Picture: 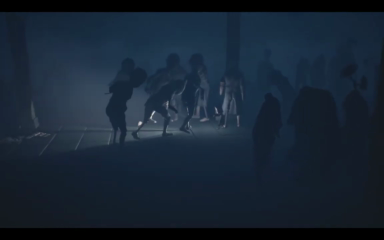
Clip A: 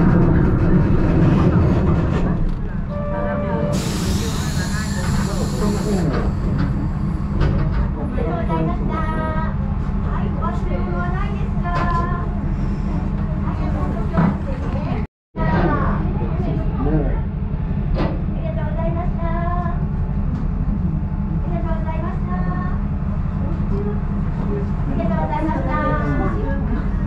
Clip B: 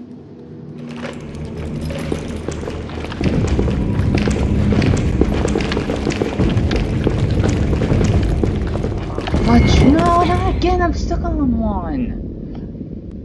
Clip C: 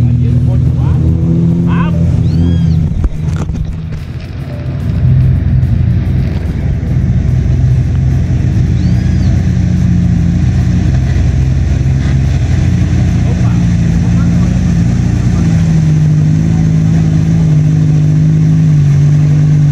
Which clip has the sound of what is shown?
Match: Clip B